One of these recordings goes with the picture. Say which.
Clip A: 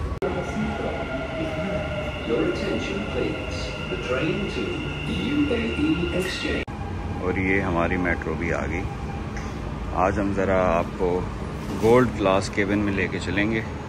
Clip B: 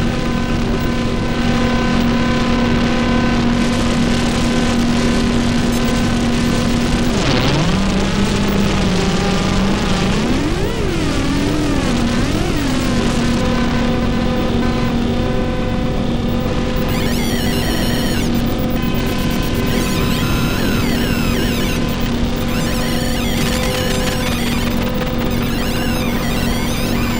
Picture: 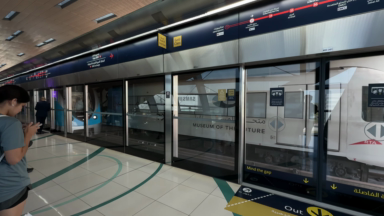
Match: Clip A